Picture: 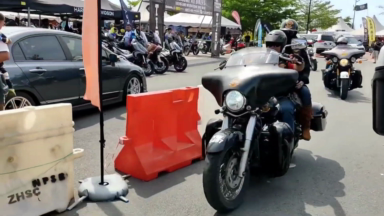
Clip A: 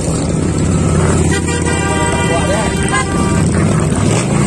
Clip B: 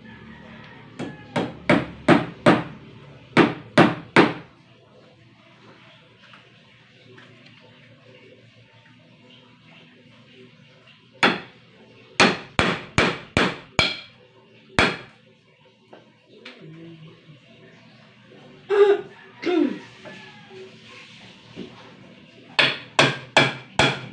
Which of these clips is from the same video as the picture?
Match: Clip A